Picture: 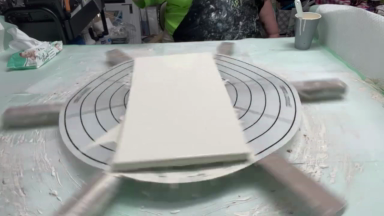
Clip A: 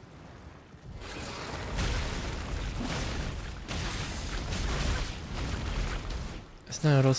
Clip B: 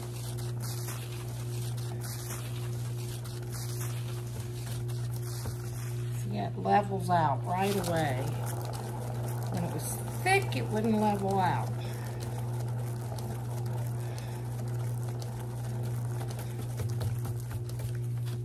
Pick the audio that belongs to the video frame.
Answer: B